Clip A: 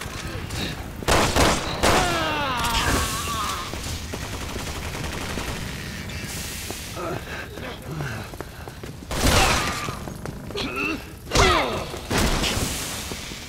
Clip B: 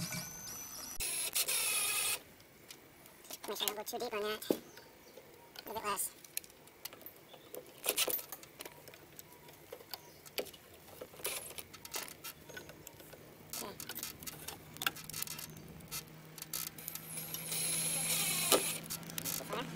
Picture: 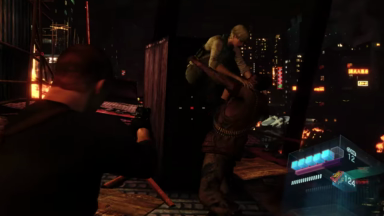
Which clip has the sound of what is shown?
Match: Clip A